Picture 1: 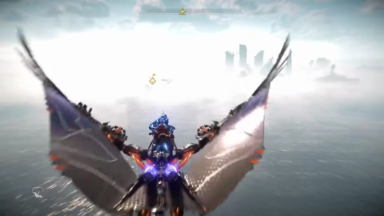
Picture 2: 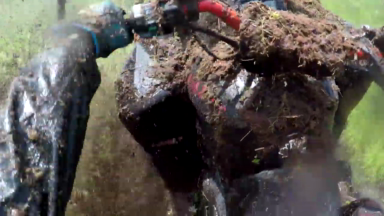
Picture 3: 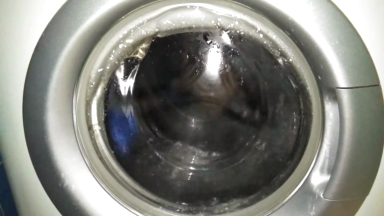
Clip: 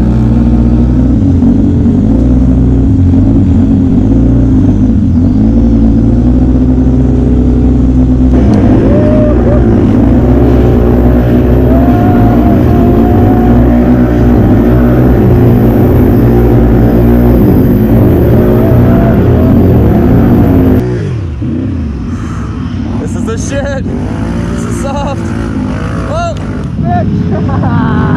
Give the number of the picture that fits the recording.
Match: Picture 2